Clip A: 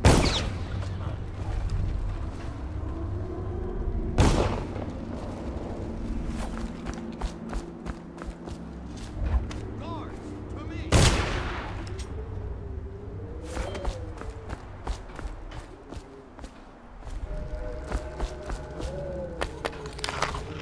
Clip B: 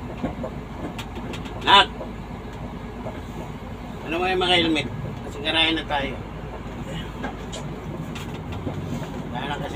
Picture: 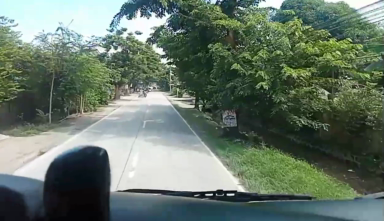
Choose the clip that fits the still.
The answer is B